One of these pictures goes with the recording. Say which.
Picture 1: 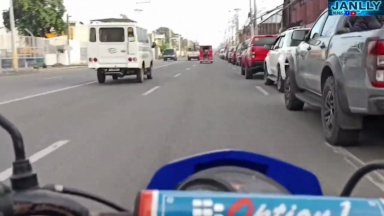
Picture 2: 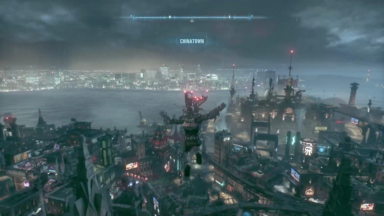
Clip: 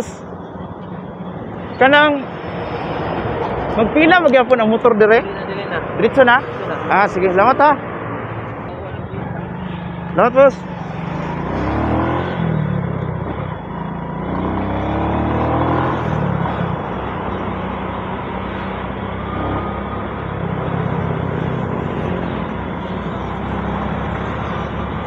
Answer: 1